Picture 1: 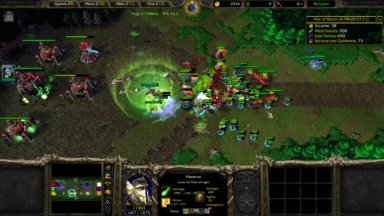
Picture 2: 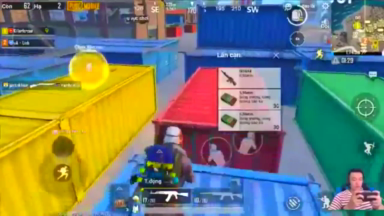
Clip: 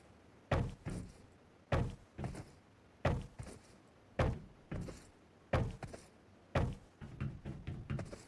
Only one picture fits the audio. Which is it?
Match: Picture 2